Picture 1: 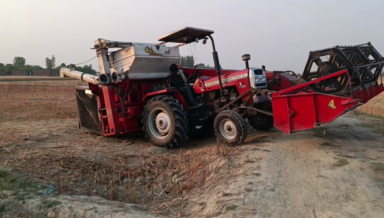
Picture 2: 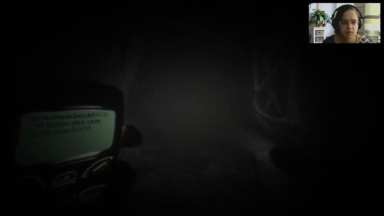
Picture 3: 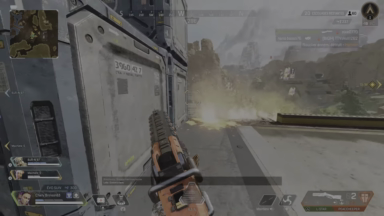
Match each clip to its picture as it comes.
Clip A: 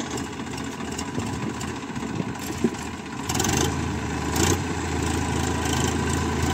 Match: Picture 1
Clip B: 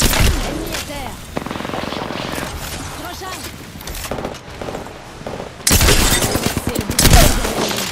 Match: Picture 3